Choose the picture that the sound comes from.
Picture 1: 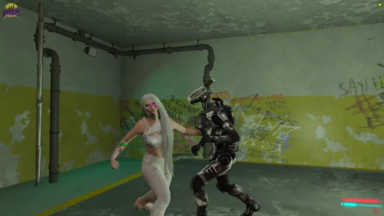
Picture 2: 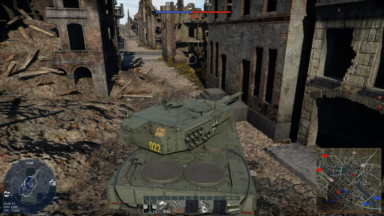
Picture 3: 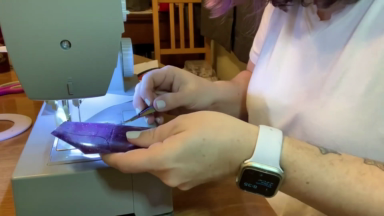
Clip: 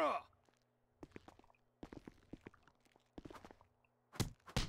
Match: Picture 1